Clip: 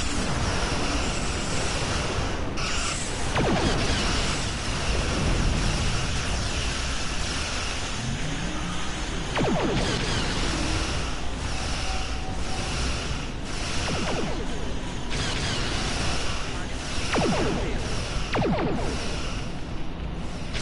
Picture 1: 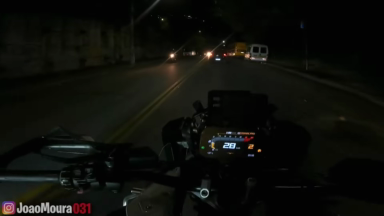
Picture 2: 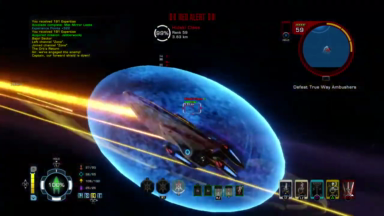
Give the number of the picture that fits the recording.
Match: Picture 2